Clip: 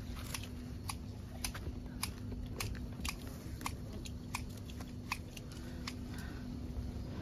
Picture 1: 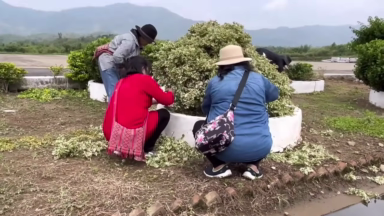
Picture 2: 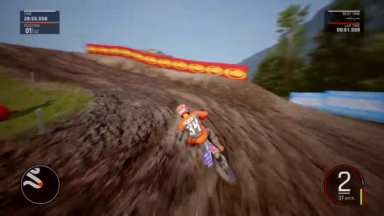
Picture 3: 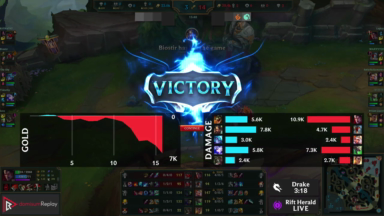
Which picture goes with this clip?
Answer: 1